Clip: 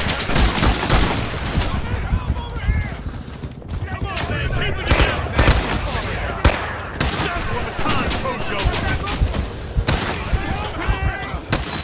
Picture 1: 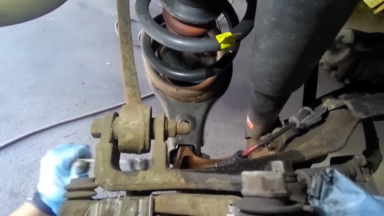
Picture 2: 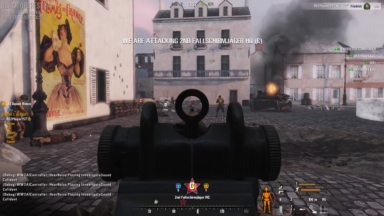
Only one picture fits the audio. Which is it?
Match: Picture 2